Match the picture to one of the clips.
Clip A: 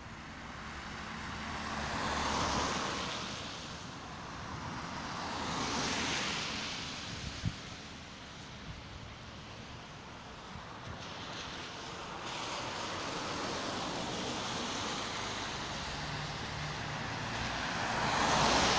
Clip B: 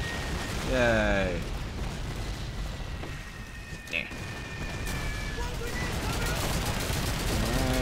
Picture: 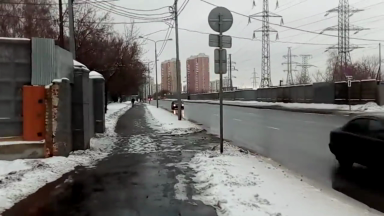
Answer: A